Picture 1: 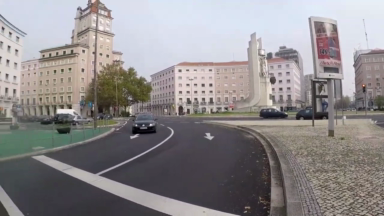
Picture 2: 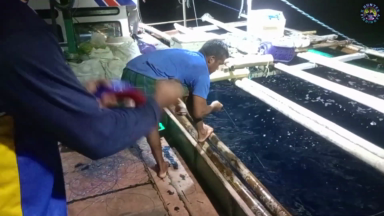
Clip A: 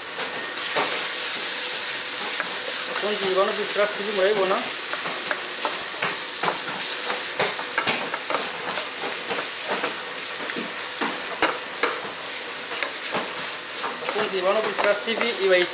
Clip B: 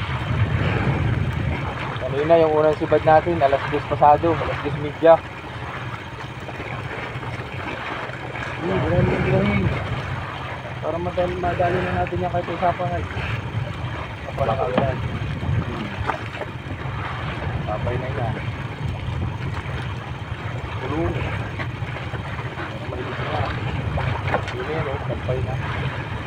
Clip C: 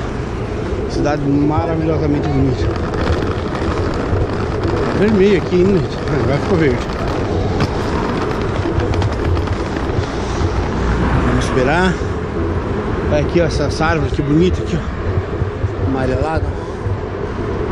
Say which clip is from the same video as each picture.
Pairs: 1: C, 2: B